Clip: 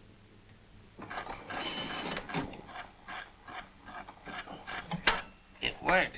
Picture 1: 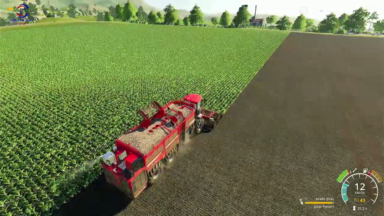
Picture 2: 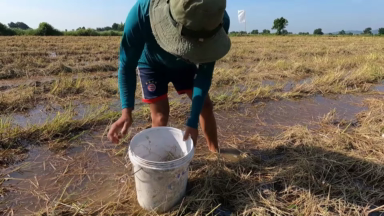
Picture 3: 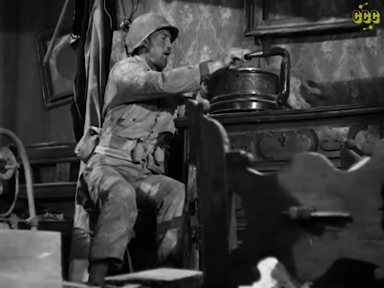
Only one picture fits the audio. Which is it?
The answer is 3